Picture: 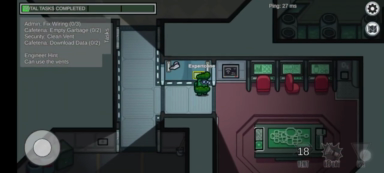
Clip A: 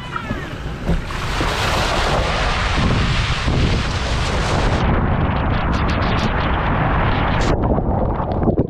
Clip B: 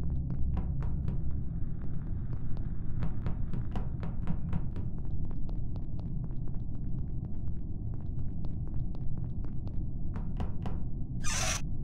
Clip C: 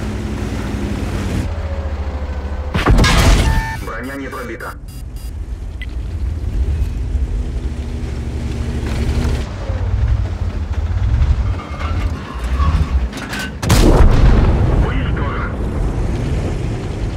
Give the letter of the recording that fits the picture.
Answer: B